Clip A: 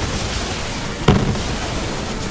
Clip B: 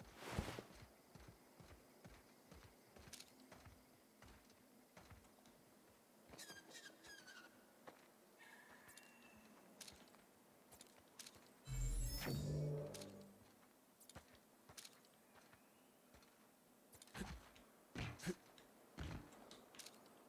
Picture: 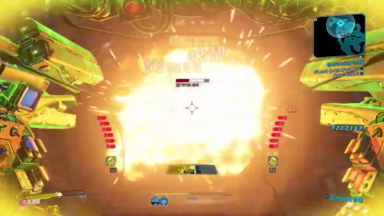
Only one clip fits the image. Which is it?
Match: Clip A